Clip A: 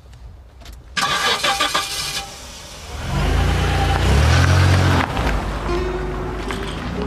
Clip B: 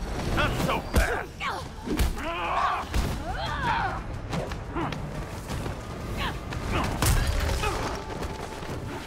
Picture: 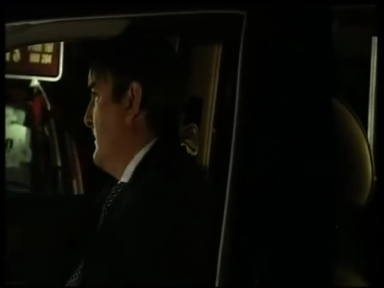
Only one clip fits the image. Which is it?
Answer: A